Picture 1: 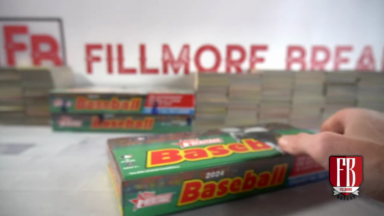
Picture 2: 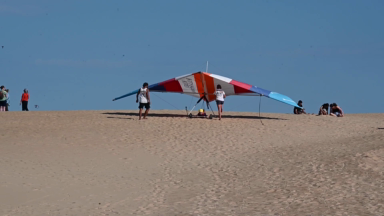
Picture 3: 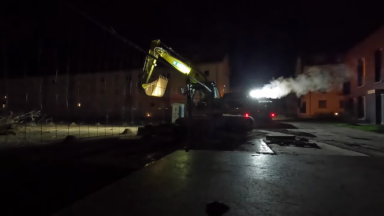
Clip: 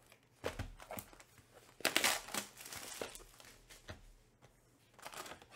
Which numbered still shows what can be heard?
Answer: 1